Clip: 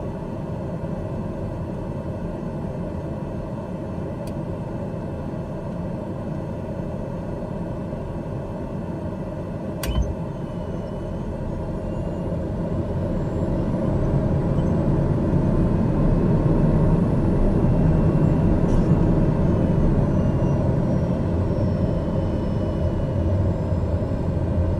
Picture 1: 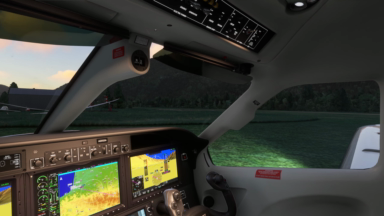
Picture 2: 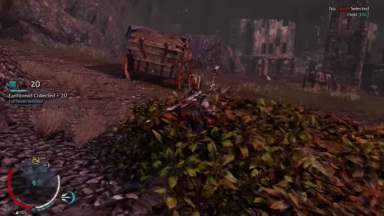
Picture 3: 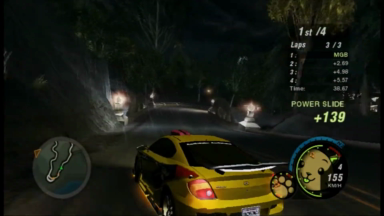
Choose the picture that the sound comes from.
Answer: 1